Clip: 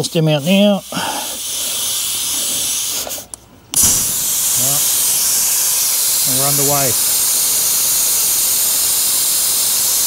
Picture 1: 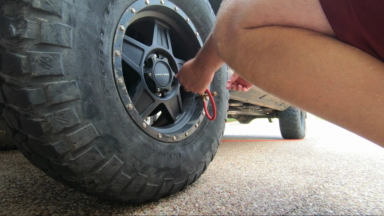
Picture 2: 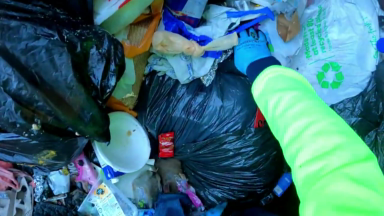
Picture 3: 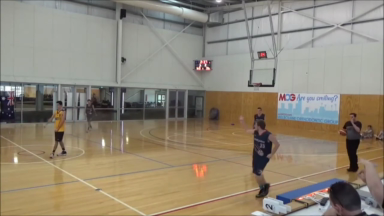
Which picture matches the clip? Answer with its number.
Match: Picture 1